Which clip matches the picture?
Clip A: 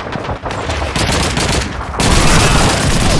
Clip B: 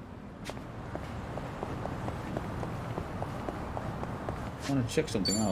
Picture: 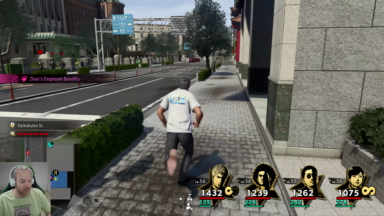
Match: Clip B